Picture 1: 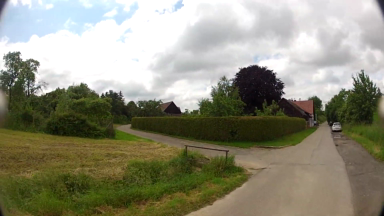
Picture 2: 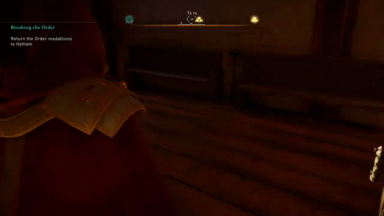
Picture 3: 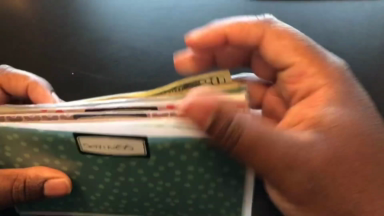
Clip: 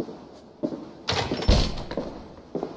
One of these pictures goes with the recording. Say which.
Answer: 2